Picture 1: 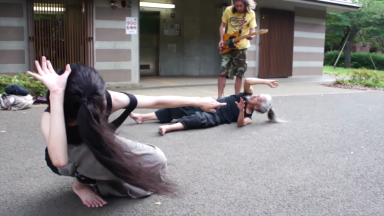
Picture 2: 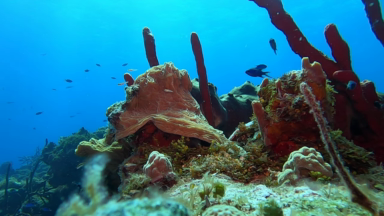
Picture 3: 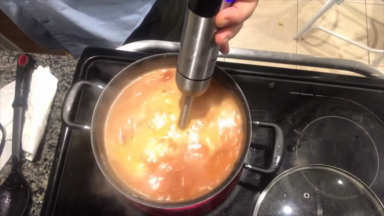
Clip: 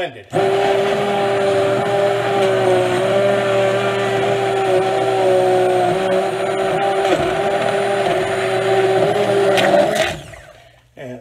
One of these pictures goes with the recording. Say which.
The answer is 3